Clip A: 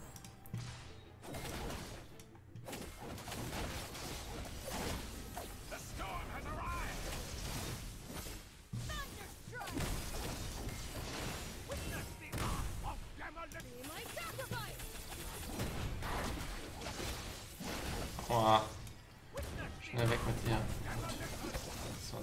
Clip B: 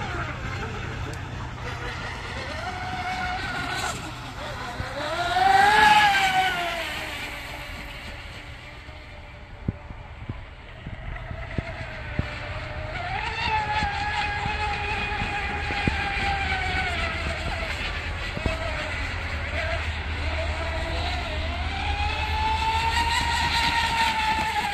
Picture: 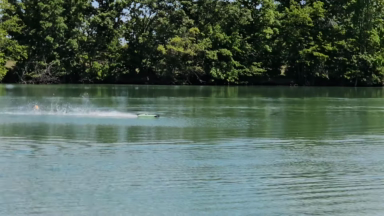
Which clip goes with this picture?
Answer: B